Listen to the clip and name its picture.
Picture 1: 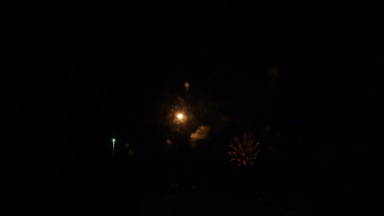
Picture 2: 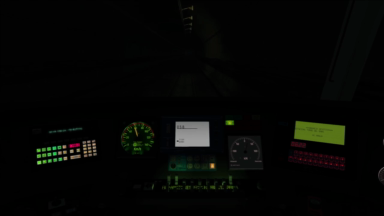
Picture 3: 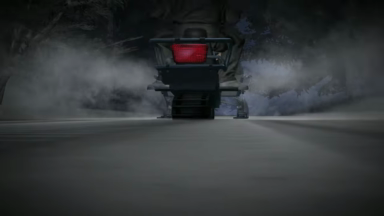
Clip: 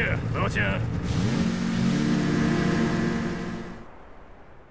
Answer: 3